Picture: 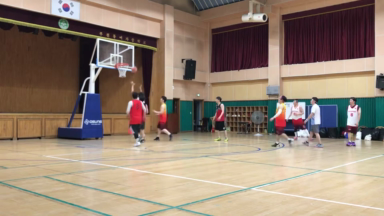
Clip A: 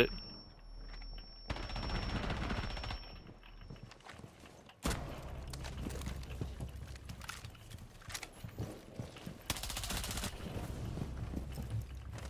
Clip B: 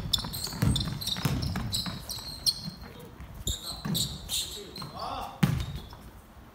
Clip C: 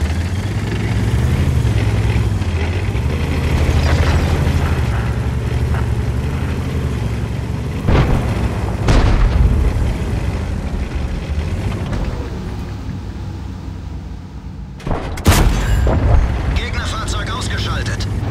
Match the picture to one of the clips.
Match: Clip B